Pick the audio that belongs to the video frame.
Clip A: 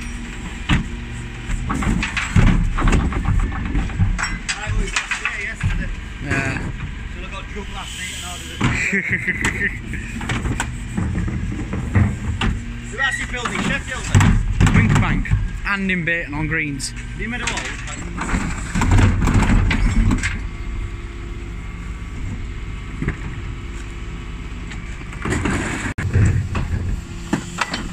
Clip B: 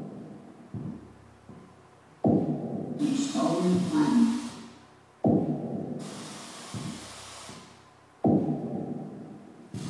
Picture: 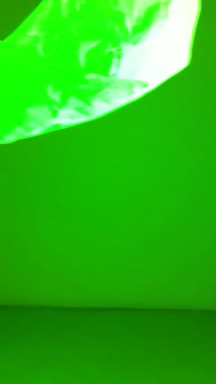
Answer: B